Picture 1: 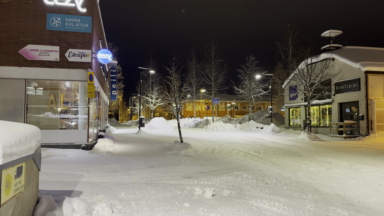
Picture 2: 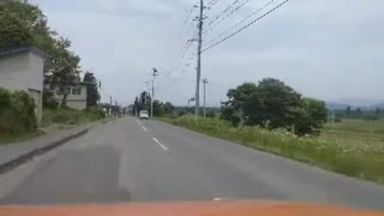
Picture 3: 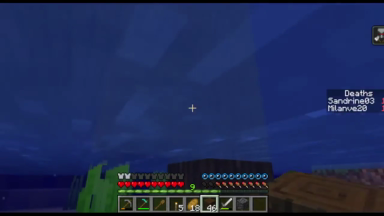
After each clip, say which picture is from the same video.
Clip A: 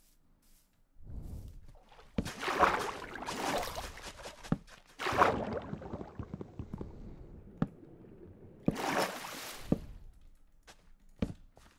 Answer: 3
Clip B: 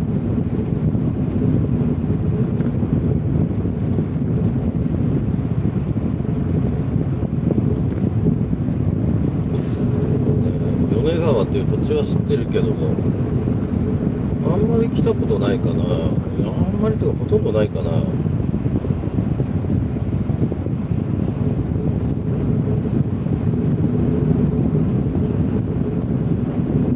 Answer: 2